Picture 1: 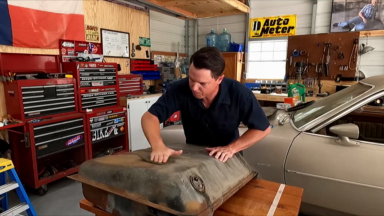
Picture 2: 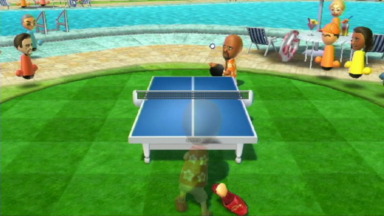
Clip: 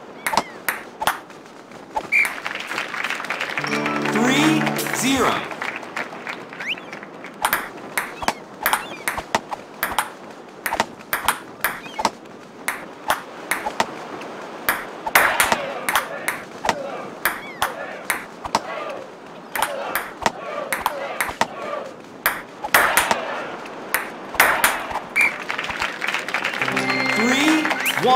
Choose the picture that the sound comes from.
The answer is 2